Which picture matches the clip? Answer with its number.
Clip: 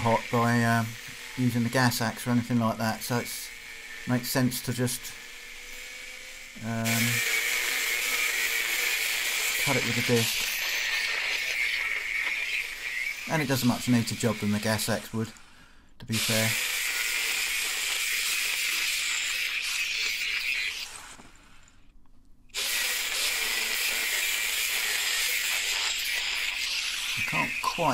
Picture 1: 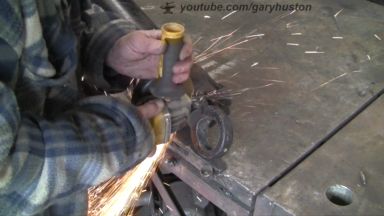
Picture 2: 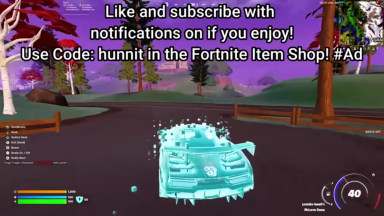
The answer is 1